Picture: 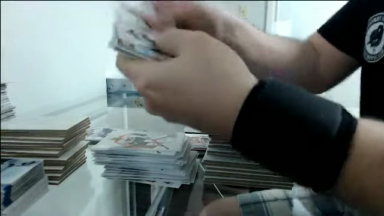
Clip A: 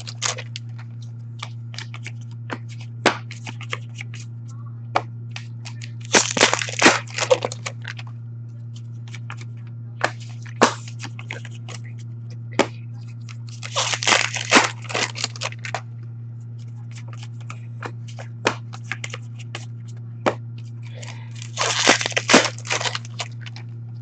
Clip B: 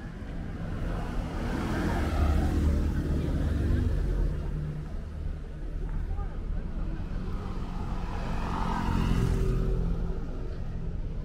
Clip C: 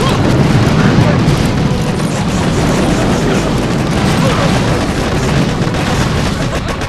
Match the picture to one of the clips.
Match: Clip A